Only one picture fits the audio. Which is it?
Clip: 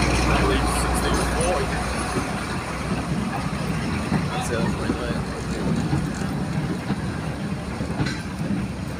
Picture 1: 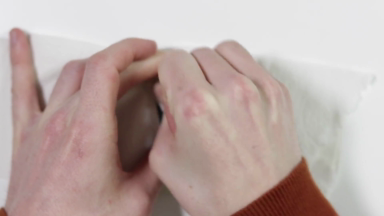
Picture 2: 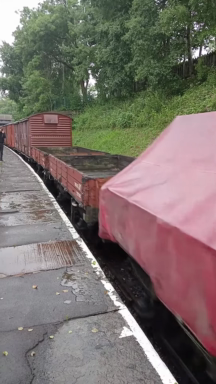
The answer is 2